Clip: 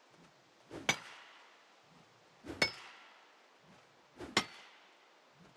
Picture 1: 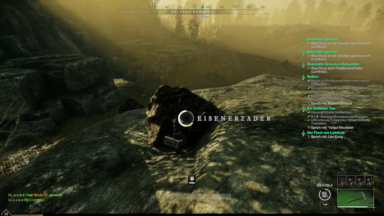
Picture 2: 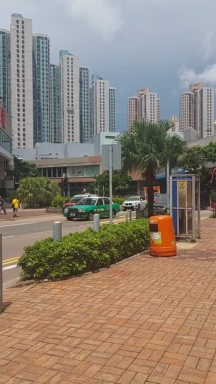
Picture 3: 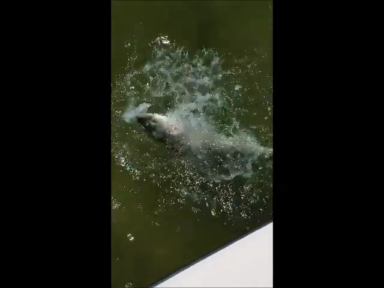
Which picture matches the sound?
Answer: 1